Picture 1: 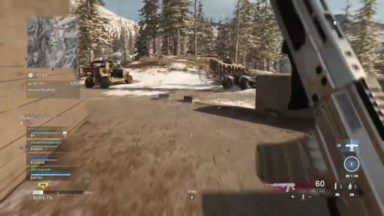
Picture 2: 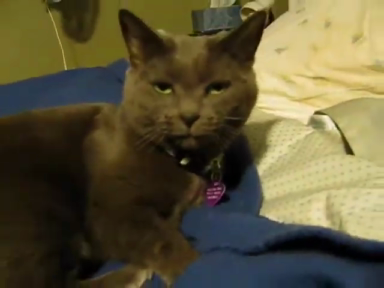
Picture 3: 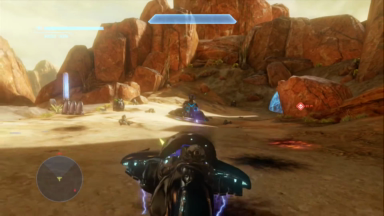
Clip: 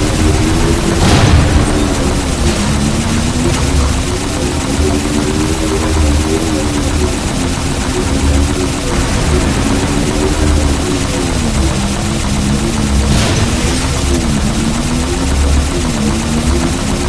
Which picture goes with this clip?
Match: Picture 3